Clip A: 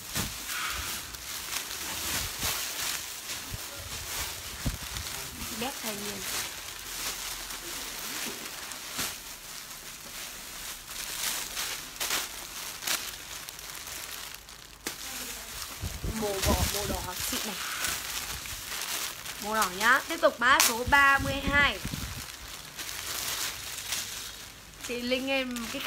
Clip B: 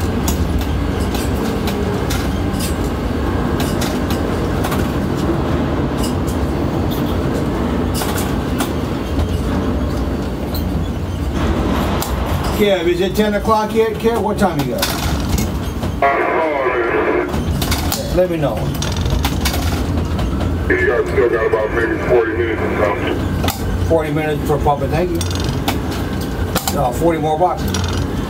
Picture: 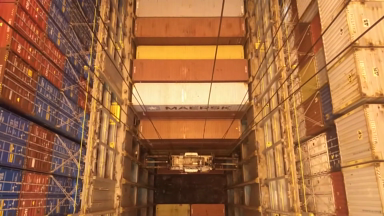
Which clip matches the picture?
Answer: B